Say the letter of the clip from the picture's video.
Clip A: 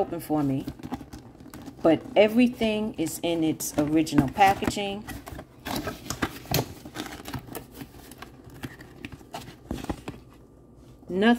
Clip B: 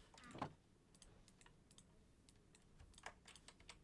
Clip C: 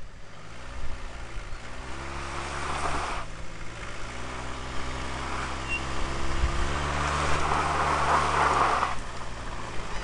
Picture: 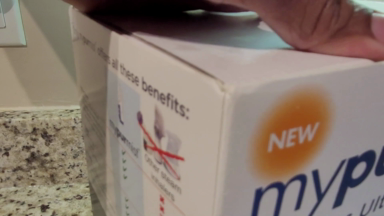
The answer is A